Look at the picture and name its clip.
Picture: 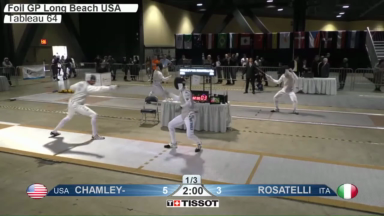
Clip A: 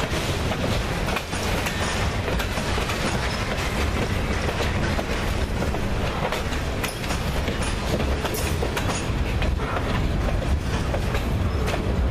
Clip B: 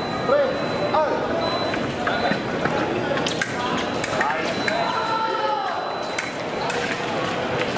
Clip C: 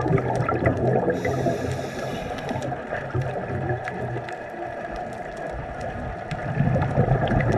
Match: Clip B